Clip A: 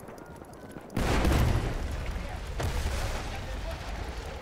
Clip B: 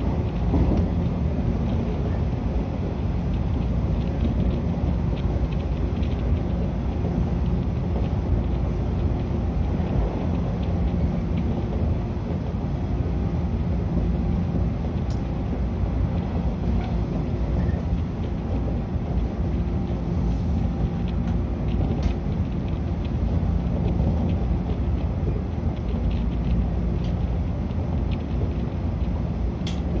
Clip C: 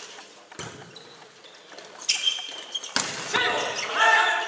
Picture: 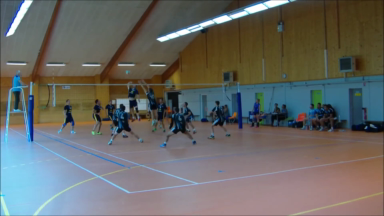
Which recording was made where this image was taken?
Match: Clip C